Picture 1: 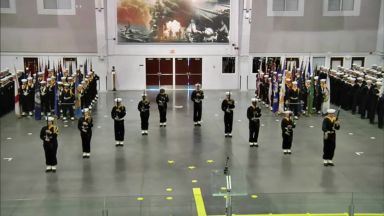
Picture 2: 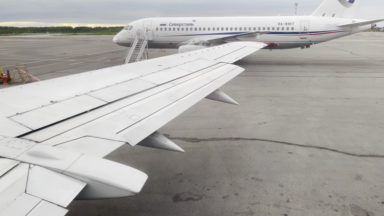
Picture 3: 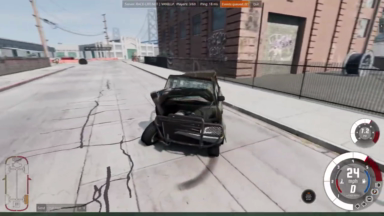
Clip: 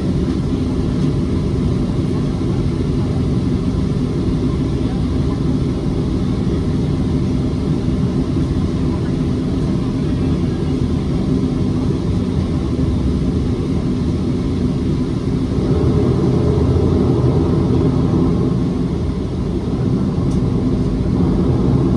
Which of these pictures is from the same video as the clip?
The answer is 2